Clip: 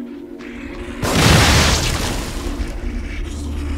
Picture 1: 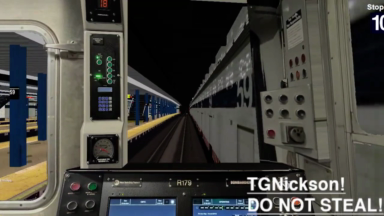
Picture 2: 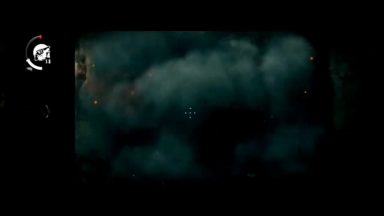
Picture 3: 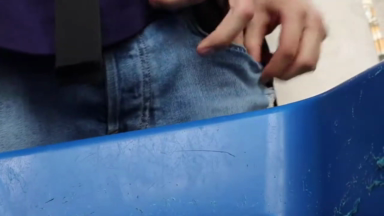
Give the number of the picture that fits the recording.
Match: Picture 2